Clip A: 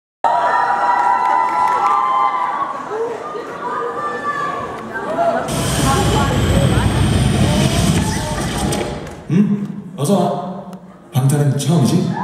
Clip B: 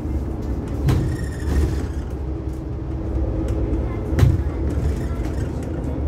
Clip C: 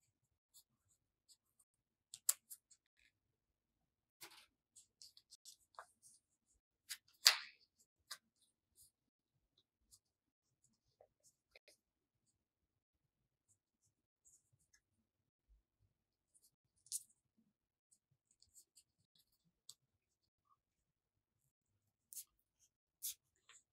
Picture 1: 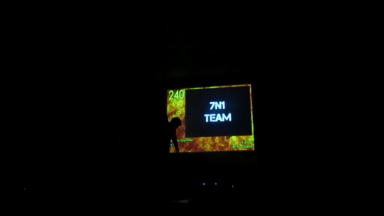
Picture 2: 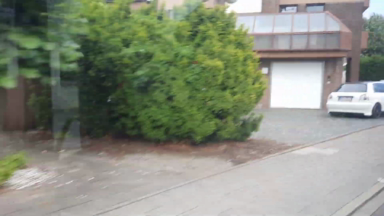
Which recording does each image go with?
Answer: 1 A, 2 B